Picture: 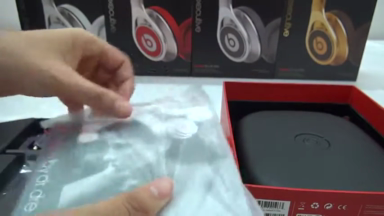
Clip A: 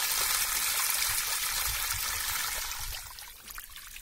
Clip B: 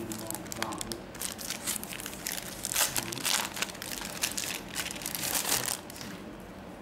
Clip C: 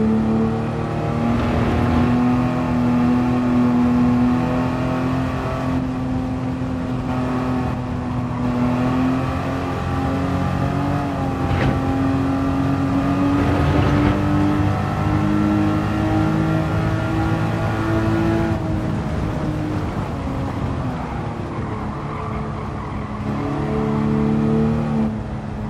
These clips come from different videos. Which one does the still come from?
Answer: B